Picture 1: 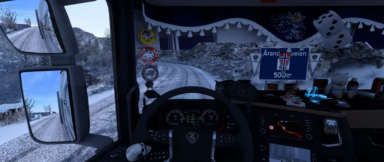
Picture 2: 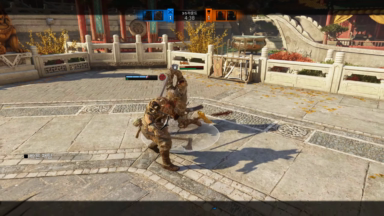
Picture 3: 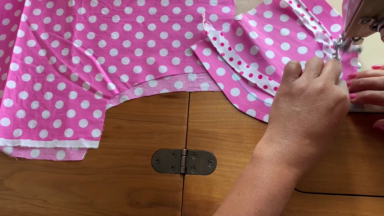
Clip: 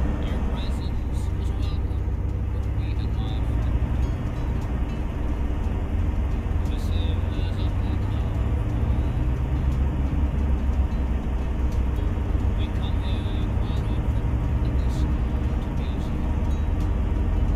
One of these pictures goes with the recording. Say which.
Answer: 1